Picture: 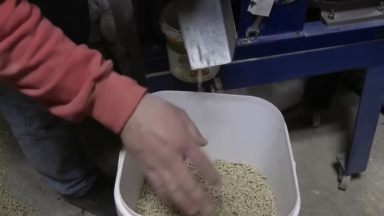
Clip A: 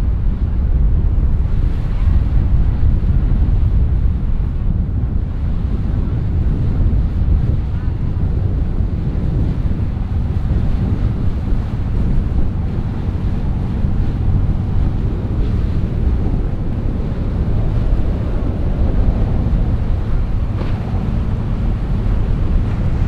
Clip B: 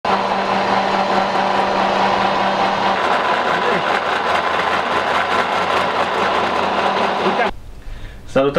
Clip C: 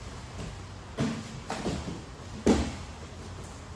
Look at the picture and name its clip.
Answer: B